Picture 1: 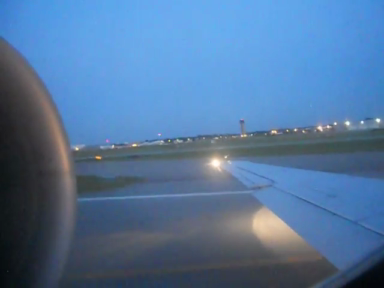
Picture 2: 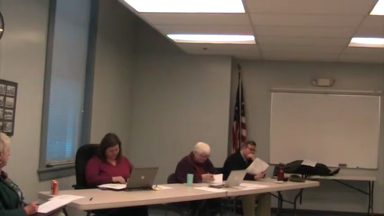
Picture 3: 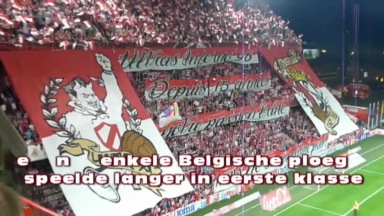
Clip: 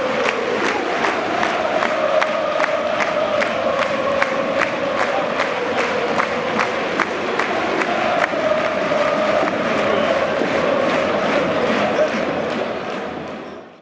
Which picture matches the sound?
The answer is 3